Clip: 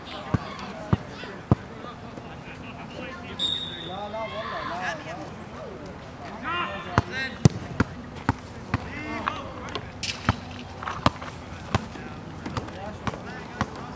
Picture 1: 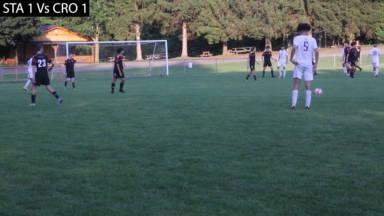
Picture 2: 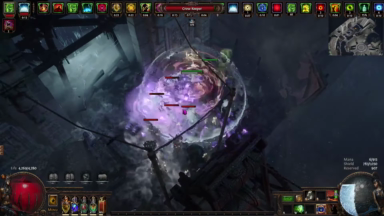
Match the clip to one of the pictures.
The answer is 1